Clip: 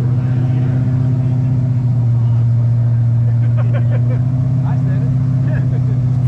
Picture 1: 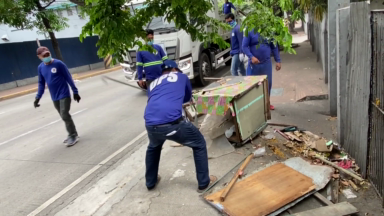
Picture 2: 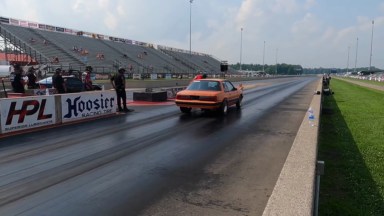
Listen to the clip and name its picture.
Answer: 2